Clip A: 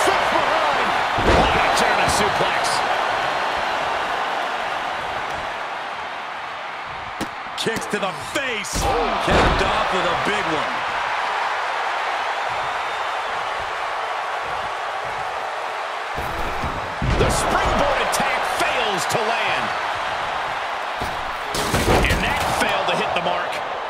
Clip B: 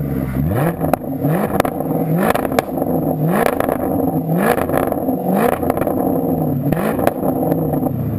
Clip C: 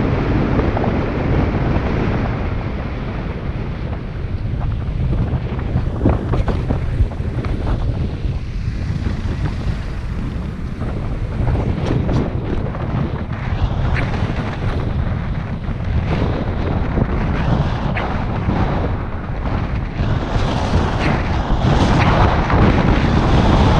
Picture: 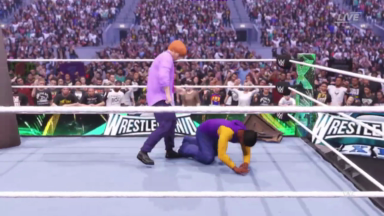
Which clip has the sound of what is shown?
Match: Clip A